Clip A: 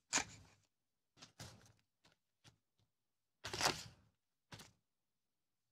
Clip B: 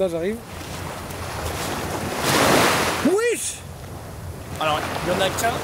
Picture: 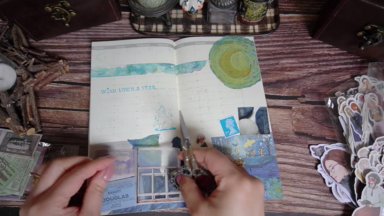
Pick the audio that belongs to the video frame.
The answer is A